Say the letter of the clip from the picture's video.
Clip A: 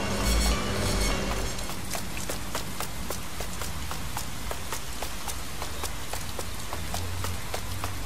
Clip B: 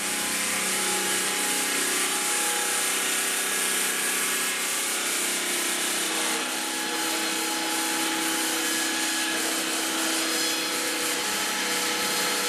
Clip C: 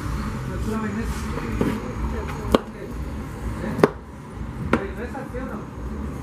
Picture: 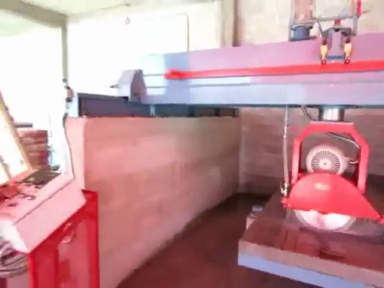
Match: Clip B